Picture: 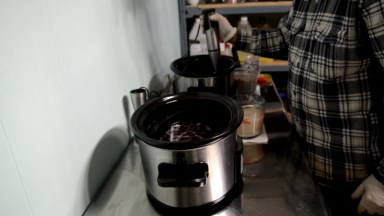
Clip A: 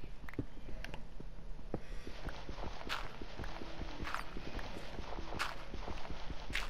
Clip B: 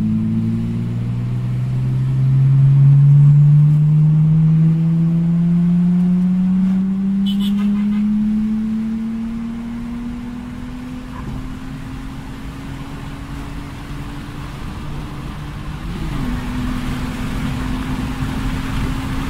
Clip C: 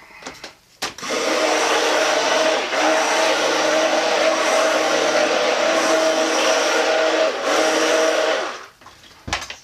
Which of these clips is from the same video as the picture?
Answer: C